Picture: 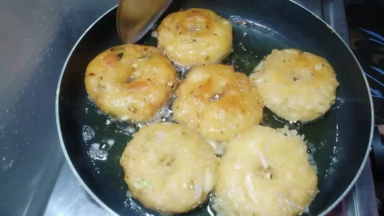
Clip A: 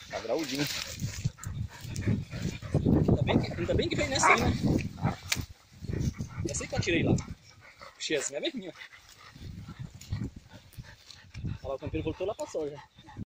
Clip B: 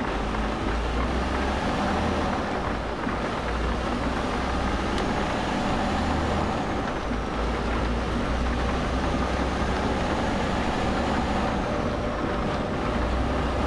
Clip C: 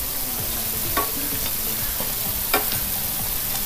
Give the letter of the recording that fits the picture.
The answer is C